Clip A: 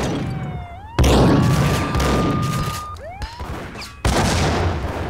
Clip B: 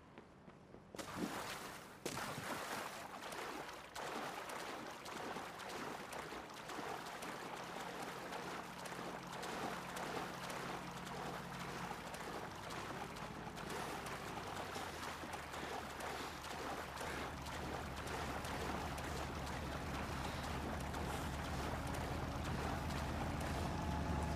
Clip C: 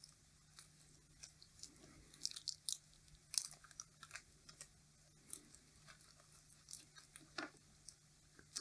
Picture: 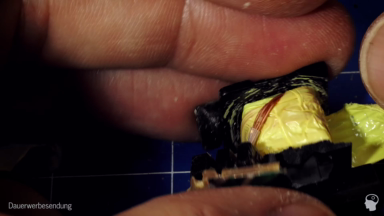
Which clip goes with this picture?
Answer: C